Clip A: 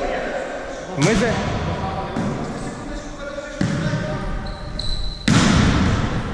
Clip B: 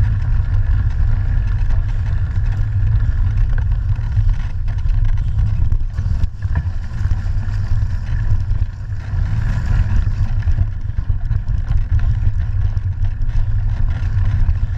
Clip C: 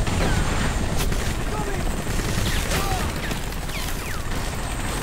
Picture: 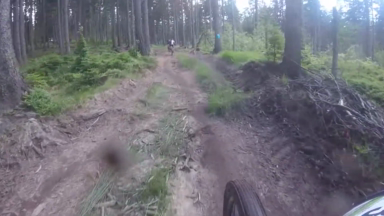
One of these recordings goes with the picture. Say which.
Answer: B